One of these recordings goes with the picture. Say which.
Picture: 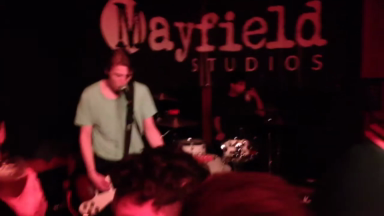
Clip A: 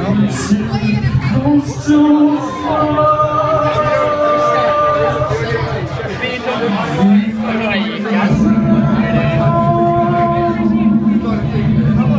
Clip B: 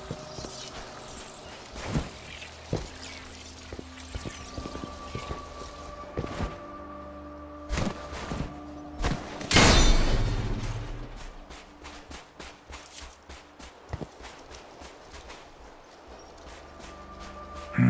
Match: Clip A